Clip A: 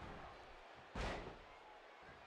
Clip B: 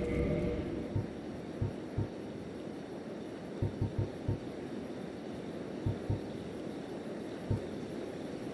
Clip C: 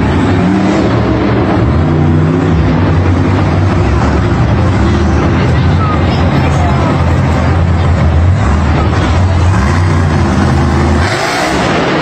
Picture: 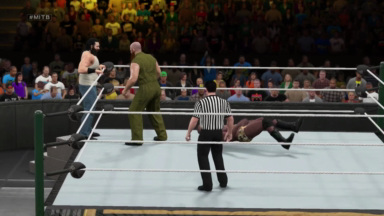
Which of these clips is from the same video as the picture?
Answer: A